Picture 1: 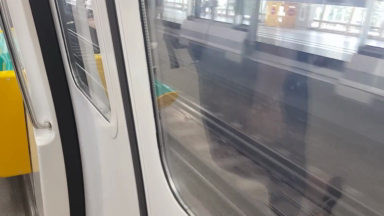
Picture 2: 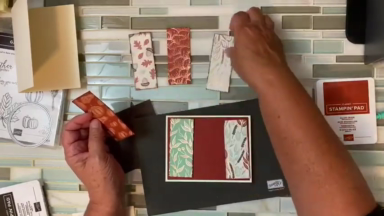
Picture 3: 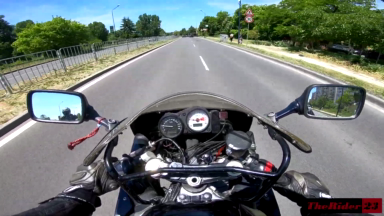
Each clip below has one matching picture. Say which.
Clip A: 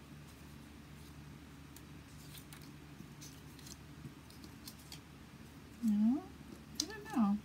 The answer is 2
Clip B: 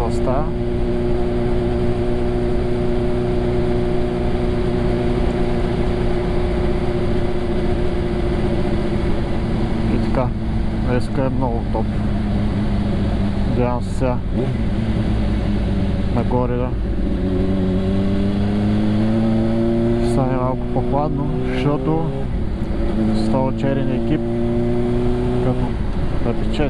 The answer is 3